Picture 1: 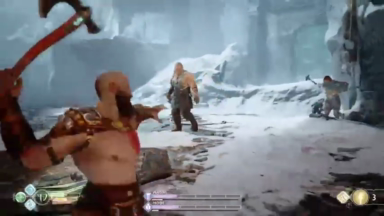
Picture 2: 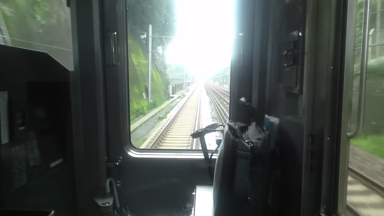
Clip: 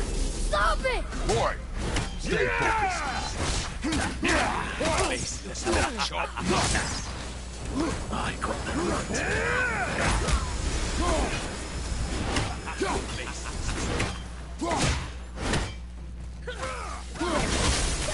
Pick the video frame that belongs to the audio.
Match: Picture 1